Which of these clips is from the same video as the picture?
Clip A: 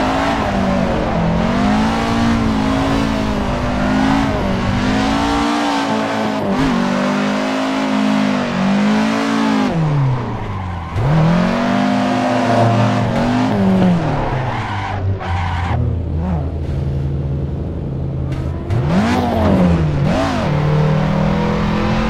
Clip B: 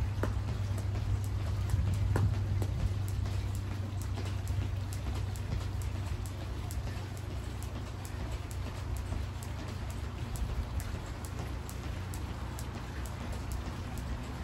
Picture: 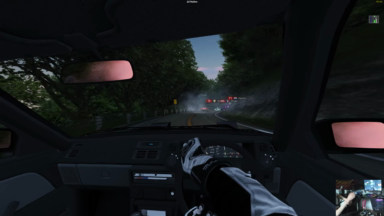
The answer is A